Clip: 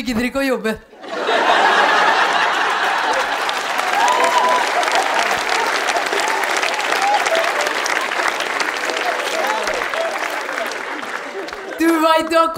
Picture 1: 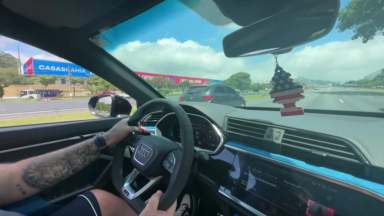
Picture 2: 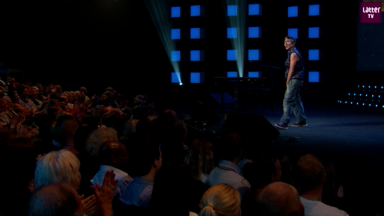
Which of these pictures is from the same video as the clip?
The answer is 2